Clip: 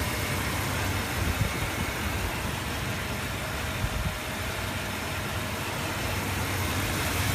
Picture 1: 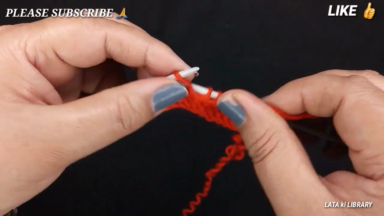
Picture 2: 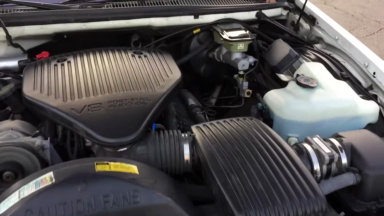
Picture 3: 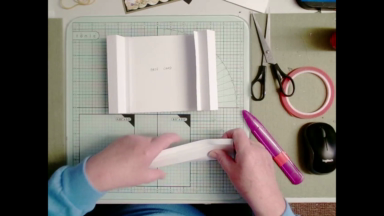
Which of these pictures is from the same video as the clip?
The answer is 2